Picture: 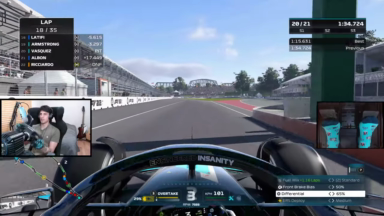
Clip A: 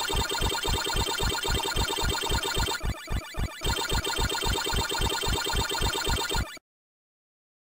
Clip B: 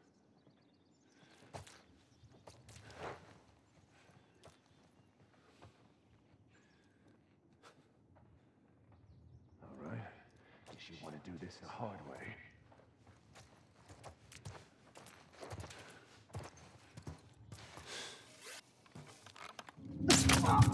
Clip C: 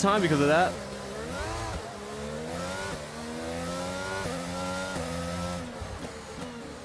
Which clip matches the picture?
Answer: C